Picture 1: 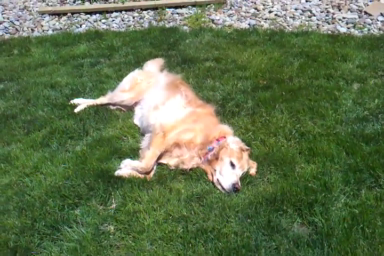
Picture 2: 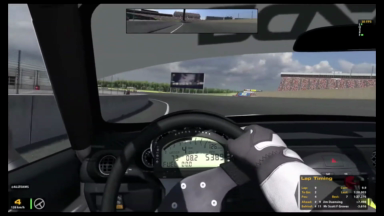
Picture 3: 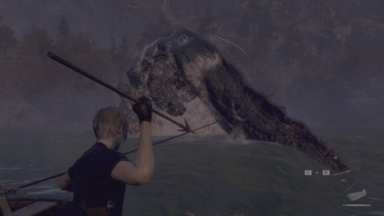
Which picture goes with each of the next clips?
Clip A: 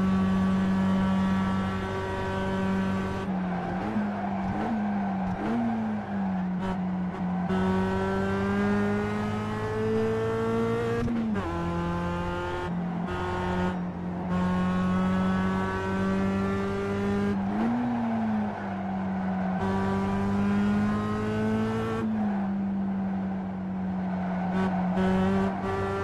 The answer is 2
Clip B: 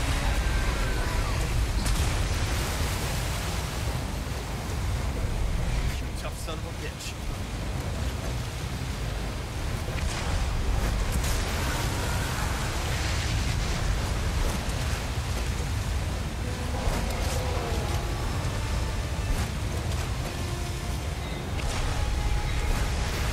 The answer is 3